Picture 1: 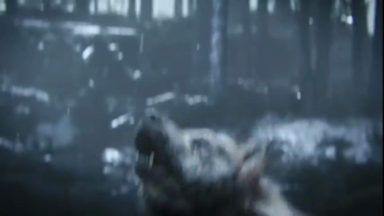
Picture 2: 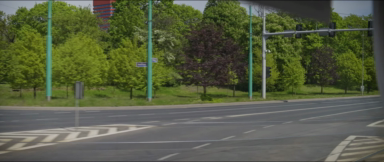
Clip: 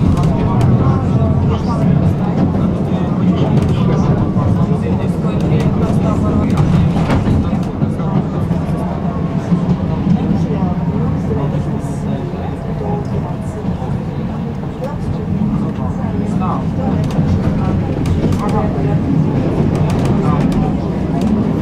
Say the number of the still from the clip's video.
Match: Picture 2